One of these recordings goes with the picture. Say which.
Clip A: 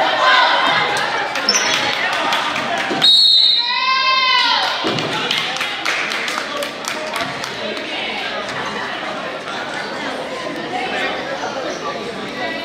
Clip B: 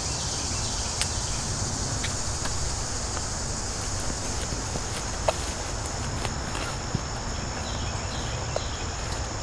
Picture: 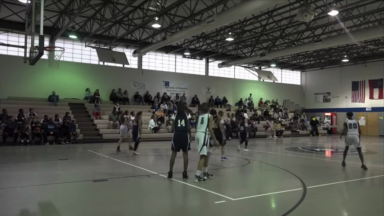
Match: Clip A